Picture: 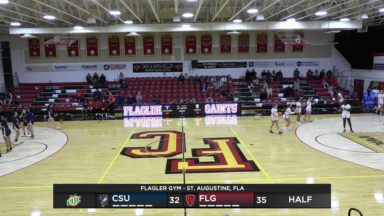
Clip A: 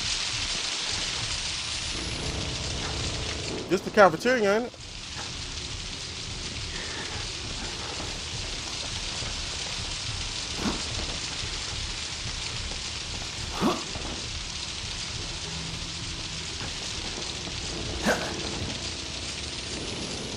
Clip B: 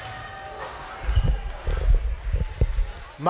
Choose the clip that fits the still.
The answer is B